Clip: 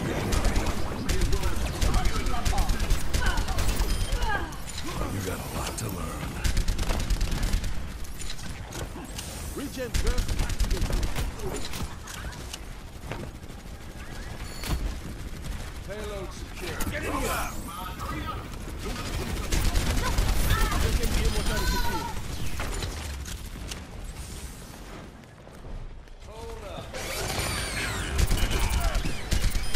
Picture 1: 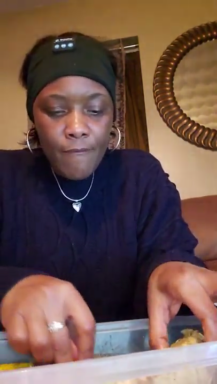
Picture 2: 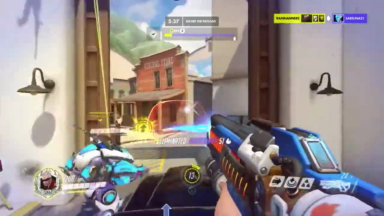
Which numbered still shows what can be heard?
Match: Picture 2